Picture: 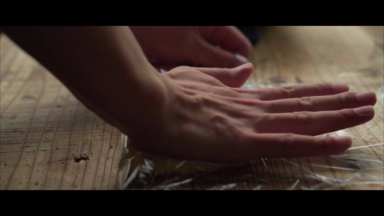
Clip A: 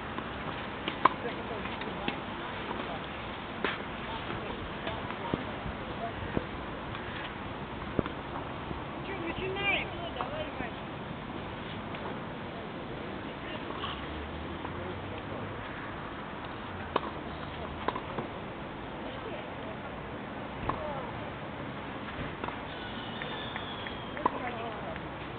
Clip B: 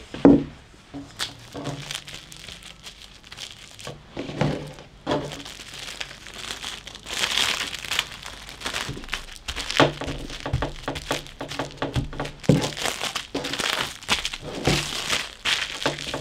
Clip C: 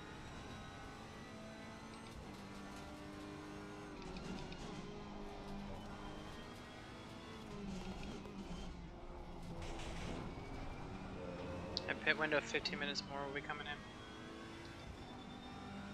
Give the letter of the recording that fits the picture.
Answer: B